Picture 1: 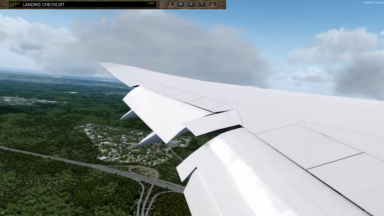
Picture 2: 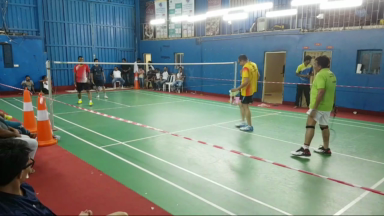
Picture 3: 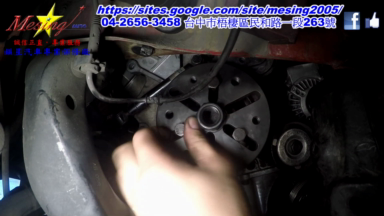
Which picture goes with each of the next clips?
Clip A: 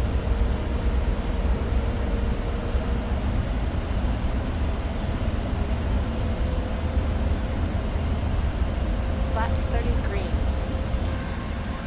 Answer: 1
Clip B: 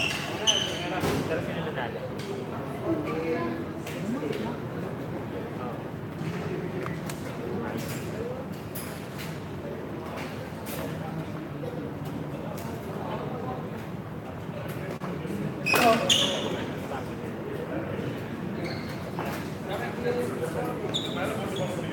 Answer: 2